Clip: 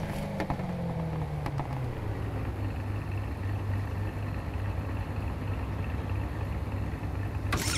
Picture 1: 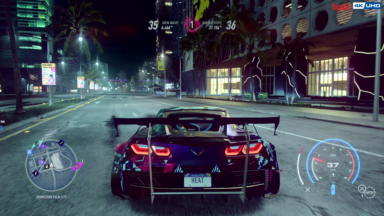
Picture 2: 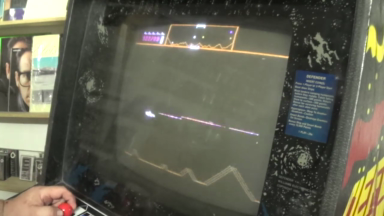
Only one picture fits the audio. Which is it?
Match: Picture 1